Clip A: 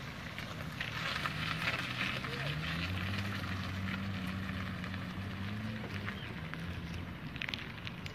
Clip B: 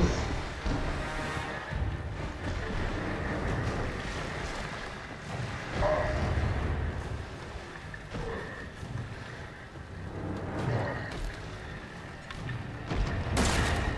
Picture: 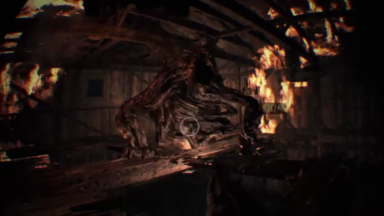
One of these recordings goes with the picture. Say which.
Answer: B